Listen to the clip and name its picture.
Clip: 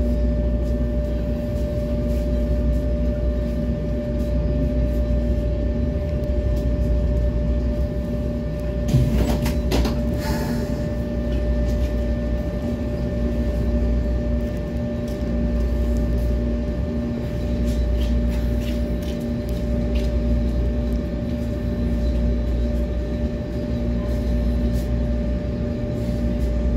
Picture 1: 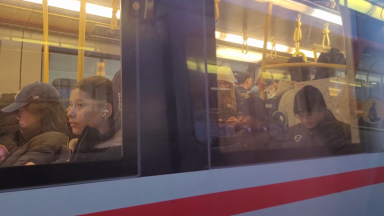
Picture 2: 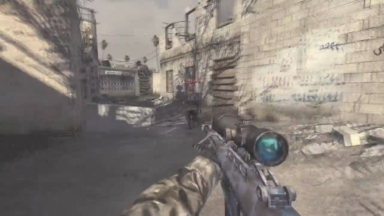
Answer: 1